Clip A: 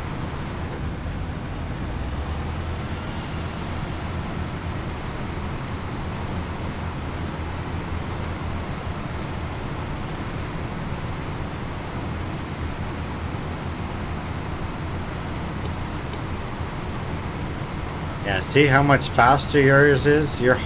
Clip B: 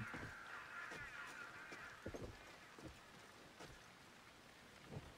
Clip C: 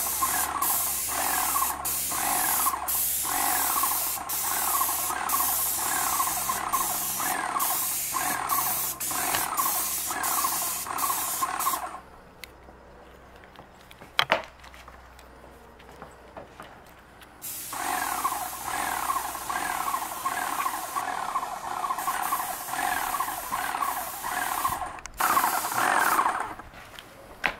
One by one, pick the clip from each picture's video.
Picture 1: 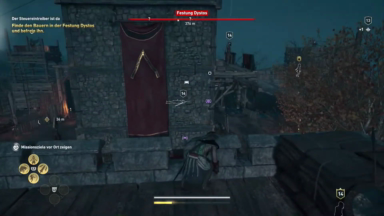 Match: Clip B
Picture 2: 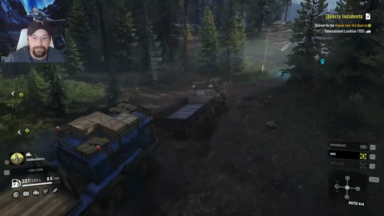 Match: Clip A